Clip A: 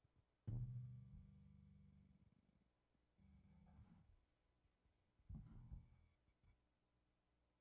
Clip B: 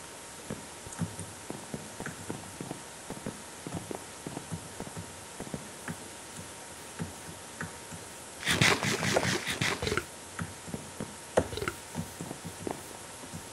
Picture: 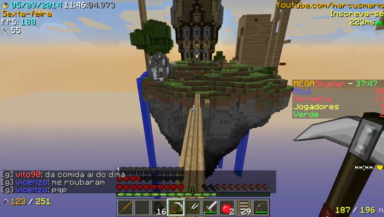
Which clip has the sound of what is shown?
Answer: B